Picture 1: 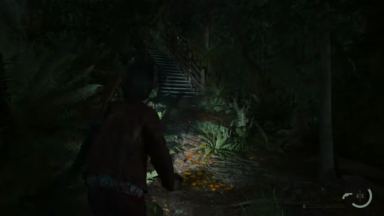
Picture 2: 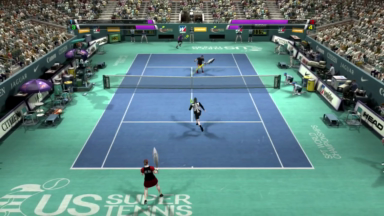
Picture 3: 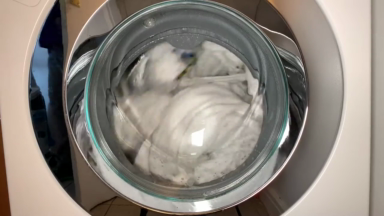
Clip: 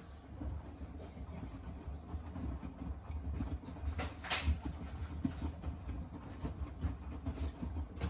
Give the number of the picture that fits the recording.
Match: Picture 3